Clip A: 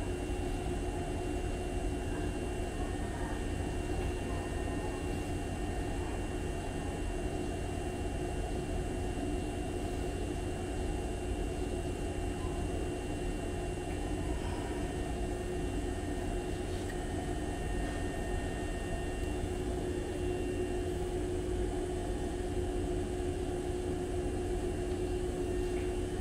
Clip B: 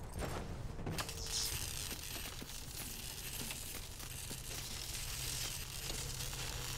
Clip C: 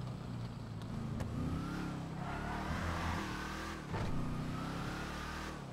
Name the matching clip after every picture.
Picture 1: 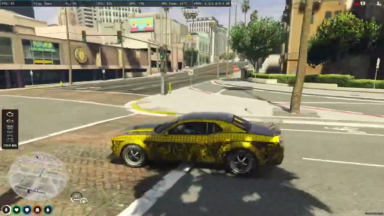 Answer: C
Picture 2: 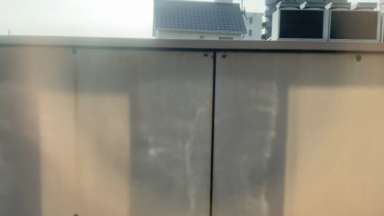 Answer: A